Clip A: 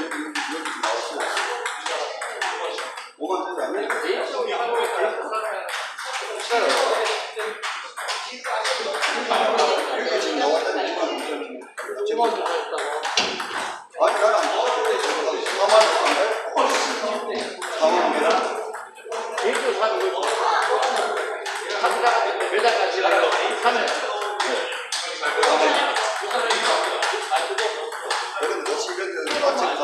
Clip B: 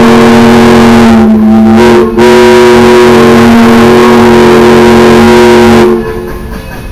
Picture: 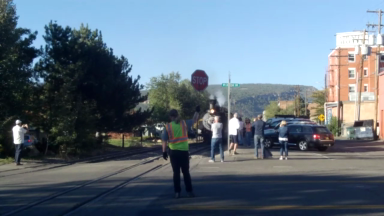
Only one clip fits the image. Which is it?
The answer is B